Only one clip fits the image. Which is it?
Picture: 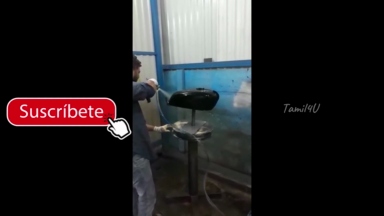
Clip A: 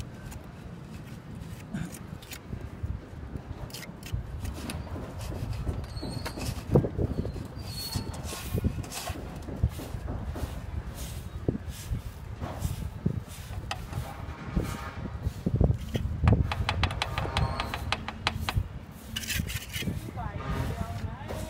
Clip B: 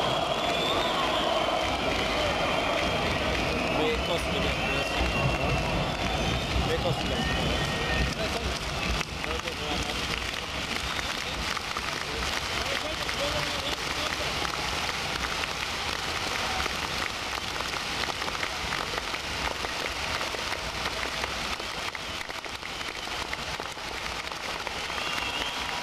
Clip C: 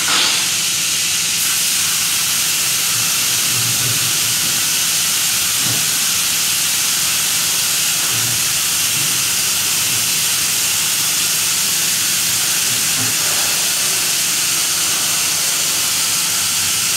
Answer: C